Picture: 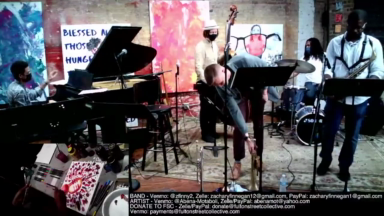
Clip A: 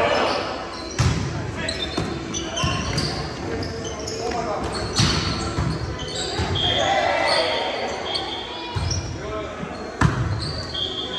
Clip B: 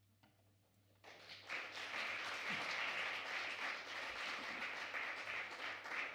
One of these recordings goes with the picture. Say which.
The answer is B